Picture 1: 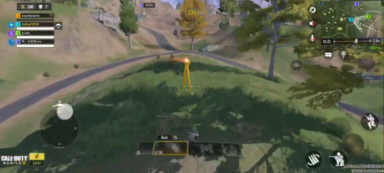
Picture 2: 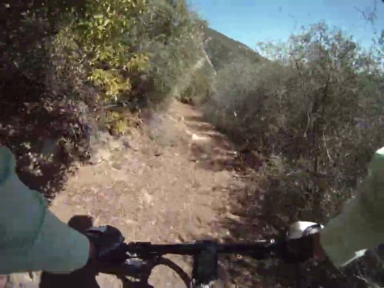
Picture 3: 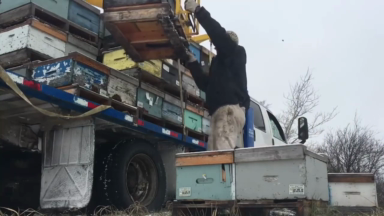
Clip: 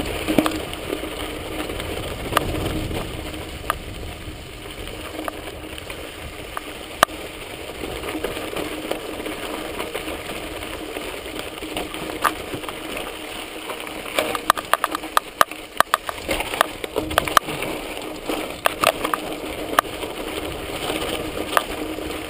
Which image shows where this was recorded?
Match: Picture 2